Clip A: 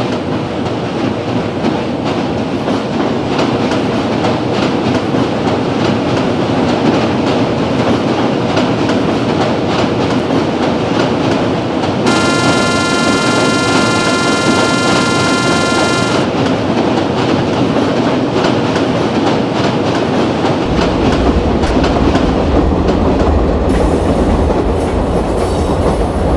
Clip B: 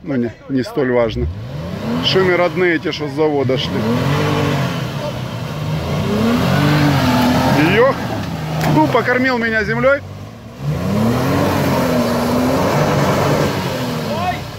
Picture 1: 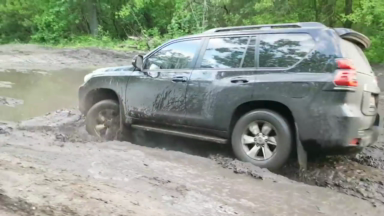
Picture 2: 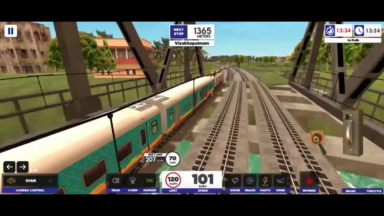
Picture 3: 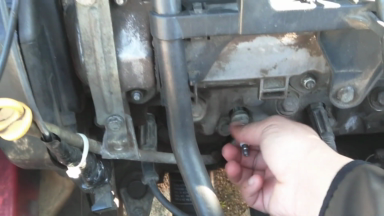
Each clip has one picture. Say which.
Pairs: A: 2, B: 1